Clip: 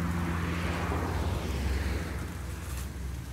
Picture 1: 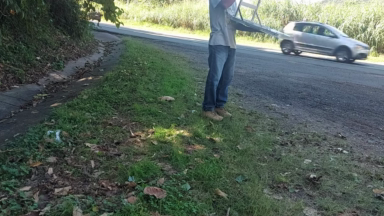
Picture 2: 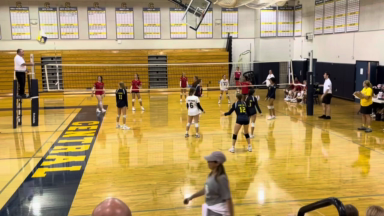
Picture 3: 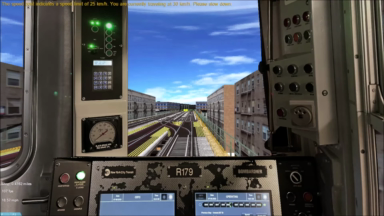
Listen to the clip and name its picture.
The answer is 1